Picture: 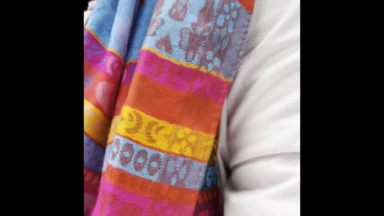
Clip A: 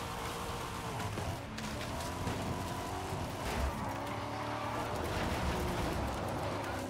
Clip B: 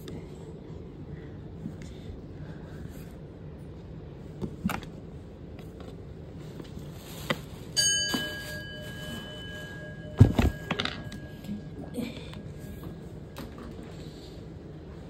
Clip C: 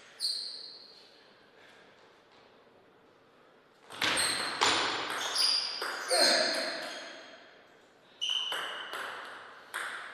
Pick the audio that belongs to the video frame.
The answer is B